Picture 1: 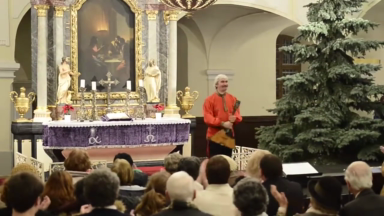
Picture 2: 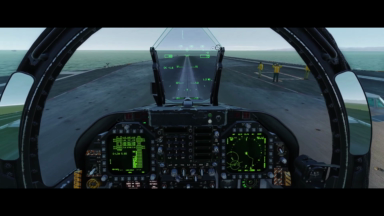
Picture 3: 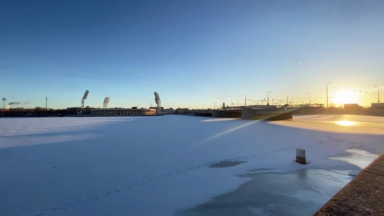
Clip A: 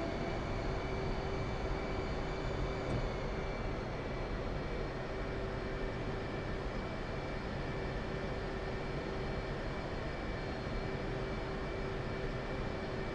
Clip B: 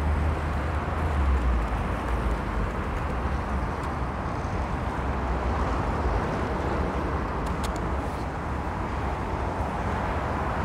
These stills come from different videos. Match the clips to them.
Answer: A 2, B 3